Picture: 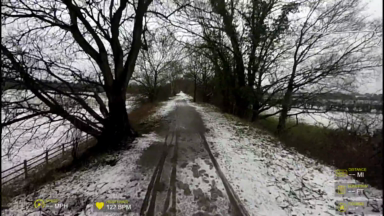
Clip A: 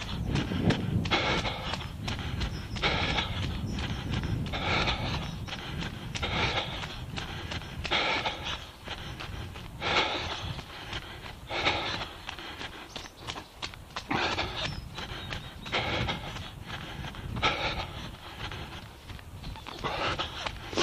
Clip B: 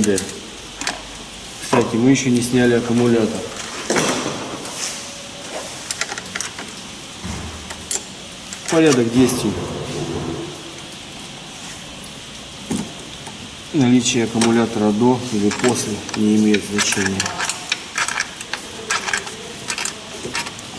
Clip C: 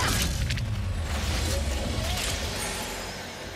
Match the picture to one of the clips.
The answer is A